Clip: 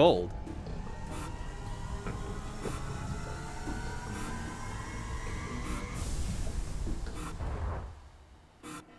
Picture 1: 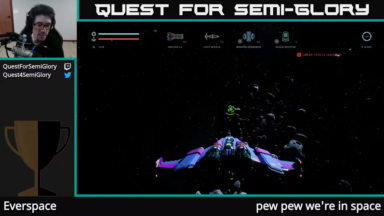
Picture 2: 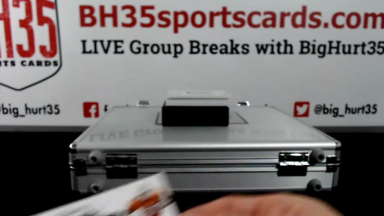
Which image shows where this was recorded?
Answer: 1